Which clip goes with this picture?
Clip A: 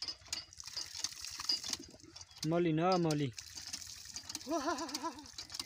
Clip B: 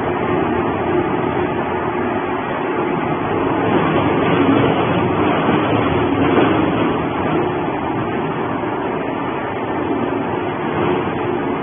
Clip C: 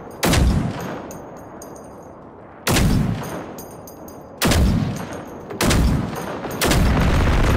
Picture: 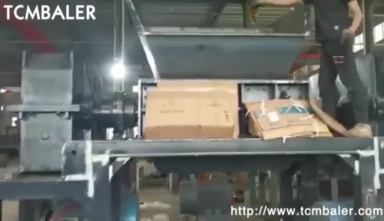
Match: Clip B